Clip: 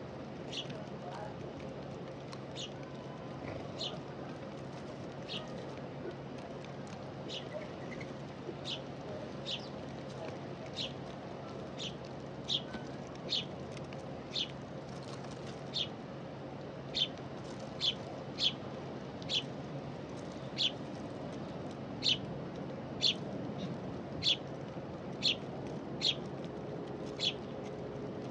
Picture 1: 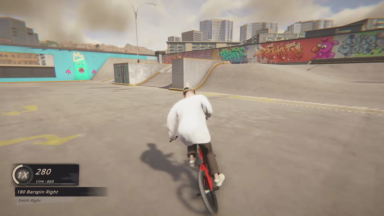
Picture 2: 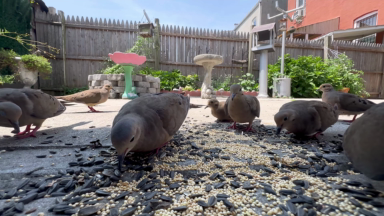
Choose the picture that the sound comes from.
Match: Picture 2